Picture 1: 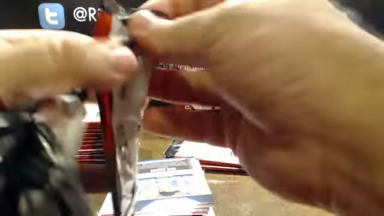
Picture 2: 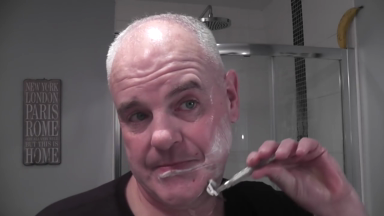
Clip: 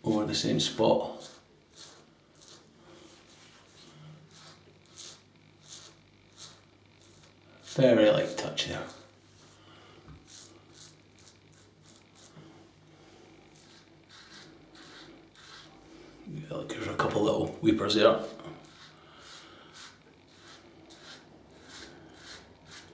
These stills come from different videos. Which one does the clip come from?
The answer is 2